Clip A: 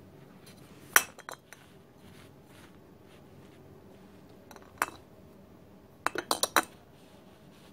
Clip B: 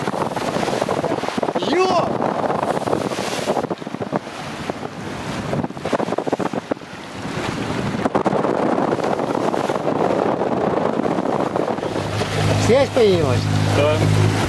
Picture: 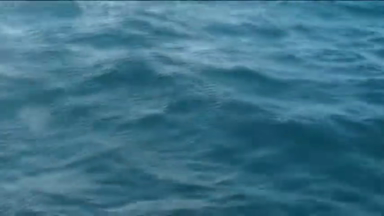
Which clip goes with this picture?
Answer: B